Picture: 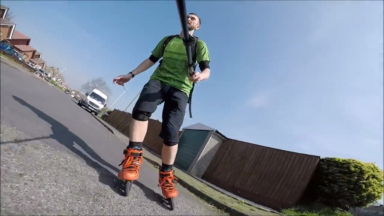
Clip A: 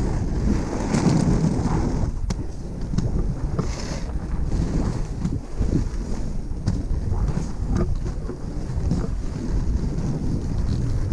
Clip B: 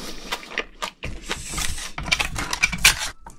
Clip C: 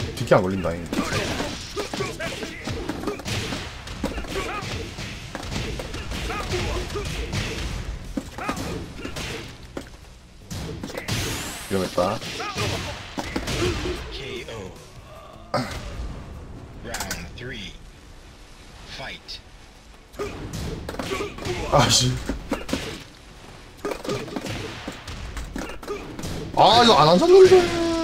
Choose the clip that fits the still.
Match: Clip A